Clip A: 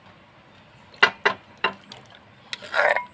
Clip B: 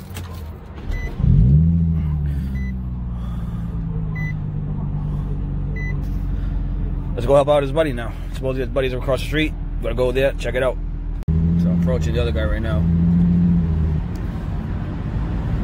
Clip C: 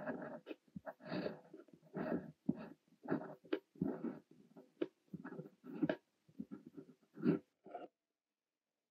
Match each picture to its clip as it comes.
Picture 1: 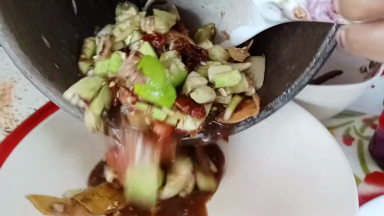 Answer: A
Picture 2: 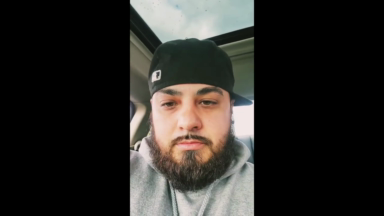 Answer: B